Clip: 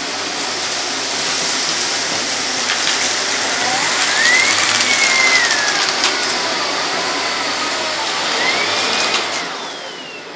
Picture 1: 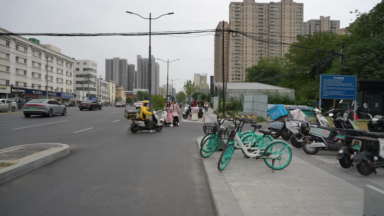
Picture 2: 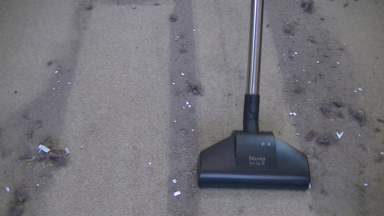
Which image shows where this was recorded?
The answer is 2